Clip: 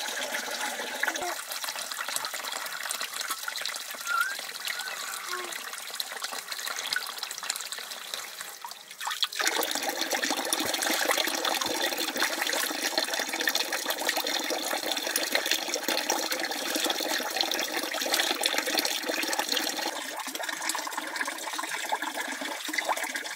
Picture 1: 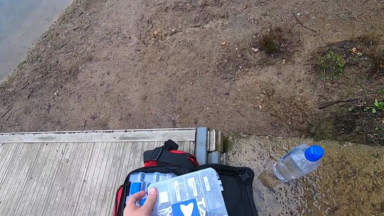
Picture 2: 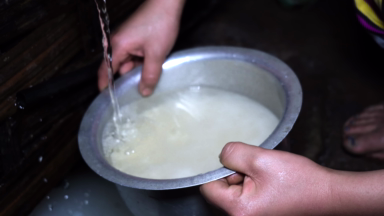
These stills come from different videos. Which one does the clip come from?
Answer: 2